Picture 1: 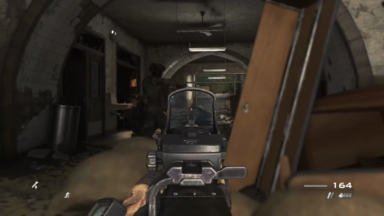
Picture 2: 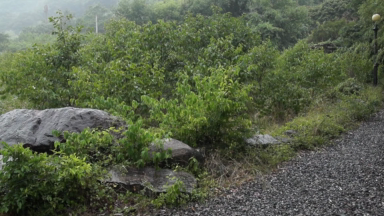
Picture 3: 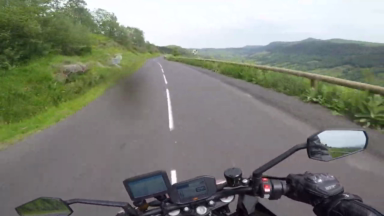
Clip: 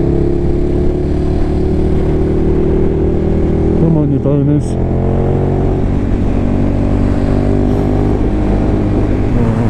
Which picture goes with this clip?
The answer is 3